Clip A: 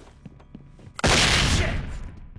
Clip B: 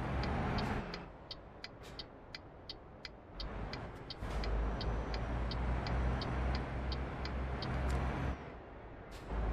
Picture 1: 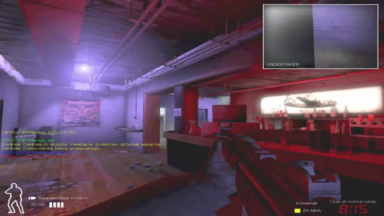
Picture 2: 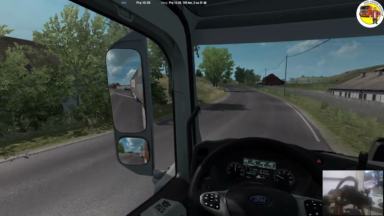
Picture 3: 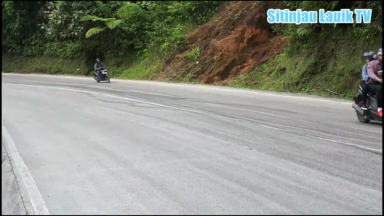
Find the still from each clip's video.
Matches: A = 1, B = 2